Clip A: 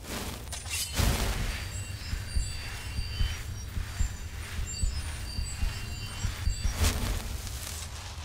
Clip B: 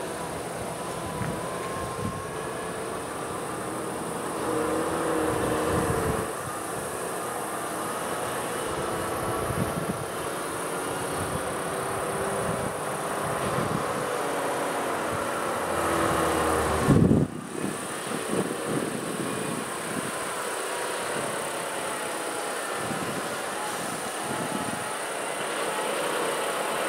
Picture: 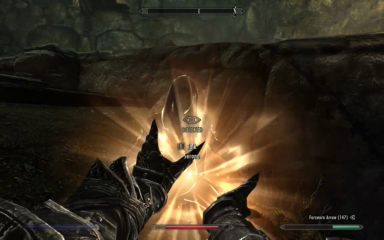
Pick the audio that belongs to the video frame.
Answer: A